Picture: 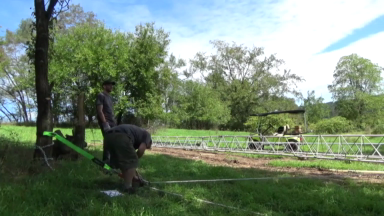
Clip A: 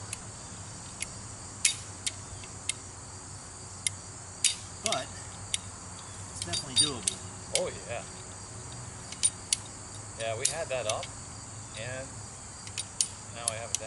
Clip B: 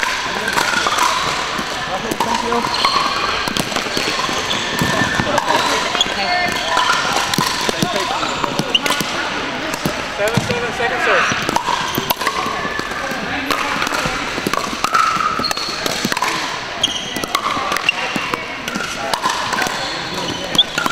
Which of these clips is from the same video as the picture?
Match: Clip A